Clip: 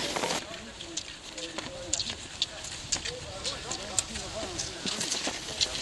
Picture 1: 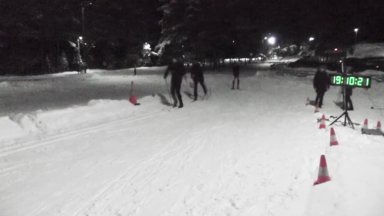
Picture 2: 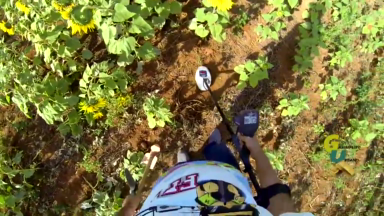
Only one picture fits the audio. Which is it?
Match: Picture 1